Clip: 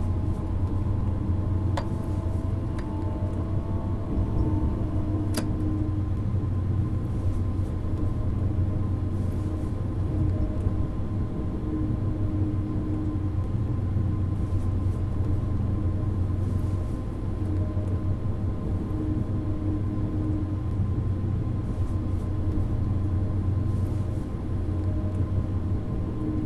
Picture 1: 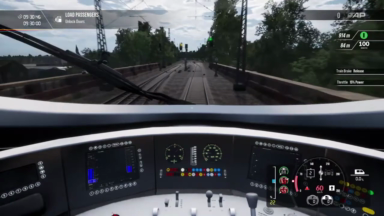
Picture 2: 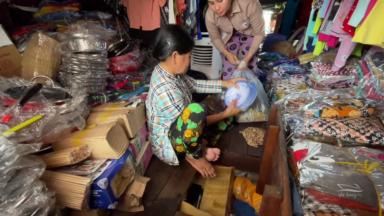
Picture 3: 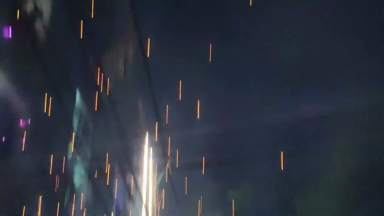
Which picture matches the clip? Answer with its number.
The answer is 1